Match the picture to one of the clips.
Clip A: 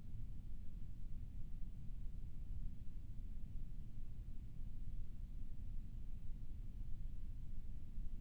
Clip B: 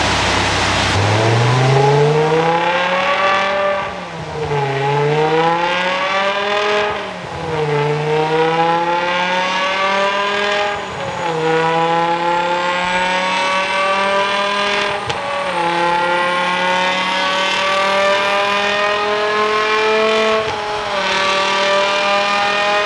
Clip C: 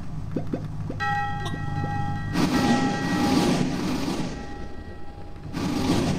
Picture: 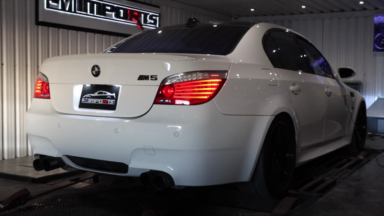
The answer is B